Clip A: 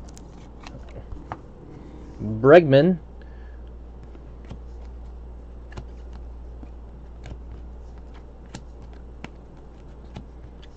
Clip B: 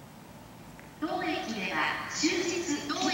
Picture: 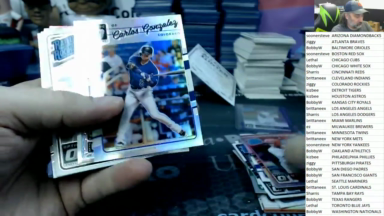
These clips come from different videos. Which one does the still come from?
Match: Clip A